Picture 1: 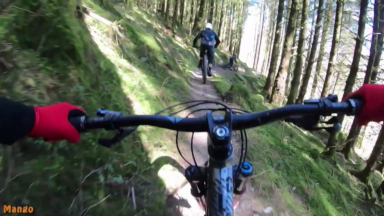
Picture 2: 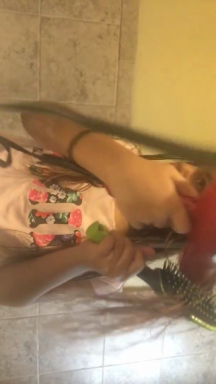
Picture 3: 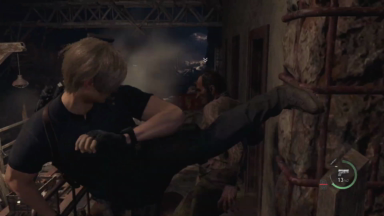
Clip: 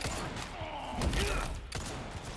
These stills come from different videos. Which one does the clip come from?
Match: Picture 3